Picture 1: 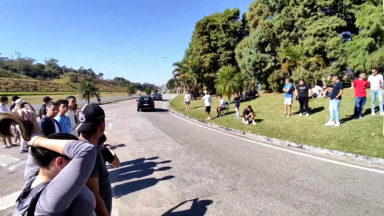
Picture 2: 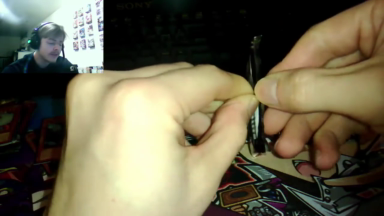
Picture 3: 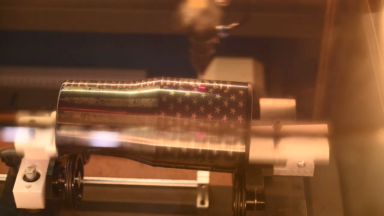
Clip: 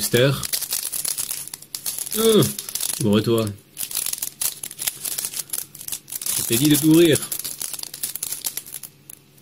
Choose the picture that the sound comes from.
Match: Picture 2